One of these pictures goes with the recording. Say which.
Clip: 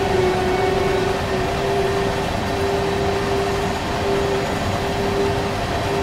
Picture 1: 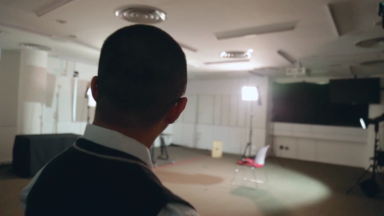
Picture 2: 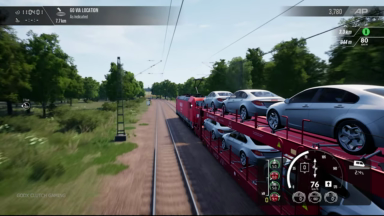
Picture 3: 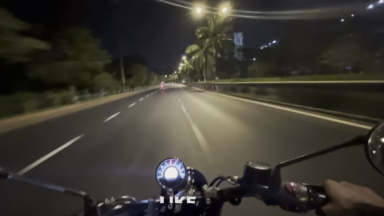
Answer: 2